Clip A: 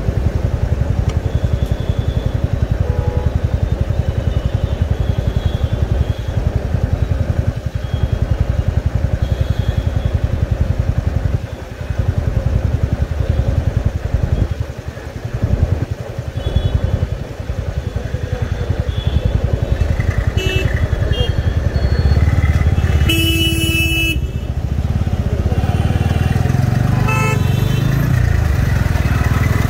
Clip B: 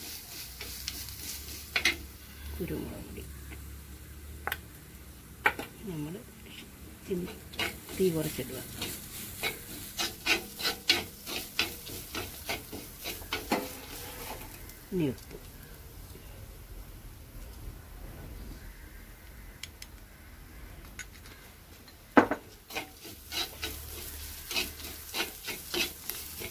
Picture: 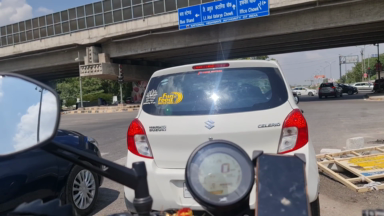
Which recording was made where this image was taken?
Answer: A